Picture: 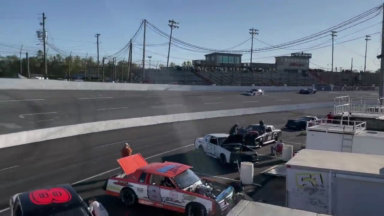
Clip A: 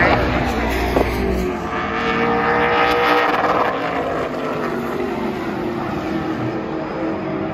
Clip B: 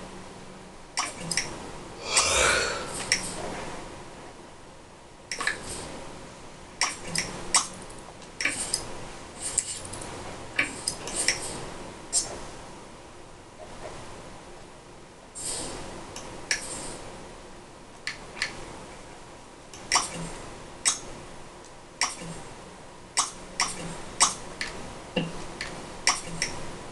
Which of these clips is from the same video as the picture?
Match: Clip A